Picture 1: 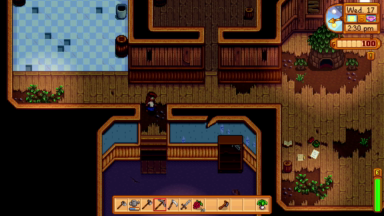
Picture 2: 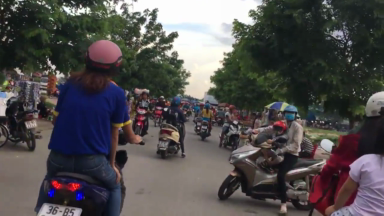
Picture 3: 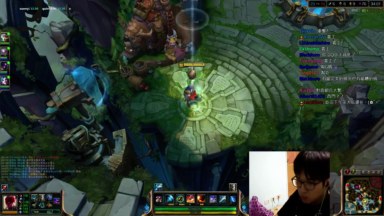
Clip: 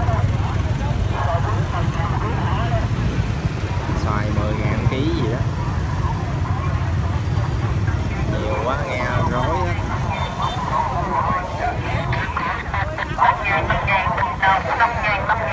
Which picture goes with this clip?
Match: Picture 2